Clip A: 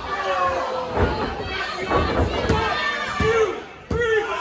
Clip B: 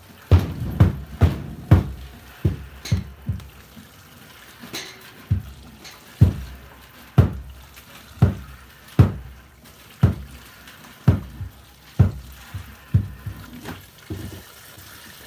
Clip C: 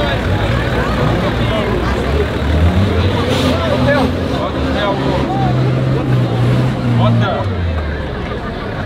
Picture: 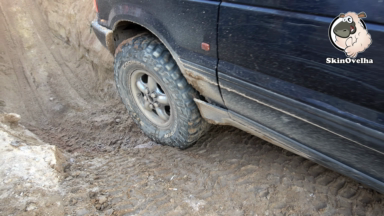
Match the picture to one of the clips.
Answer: C